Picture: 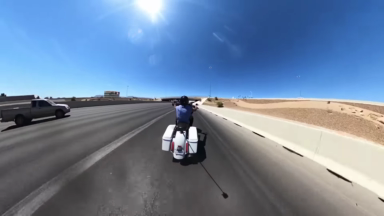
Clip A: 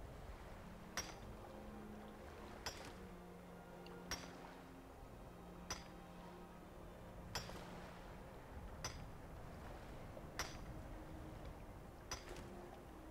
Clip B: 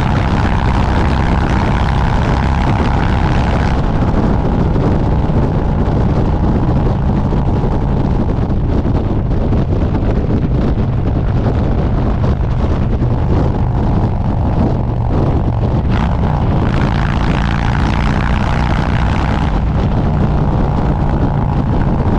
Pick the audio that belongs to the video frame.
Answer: B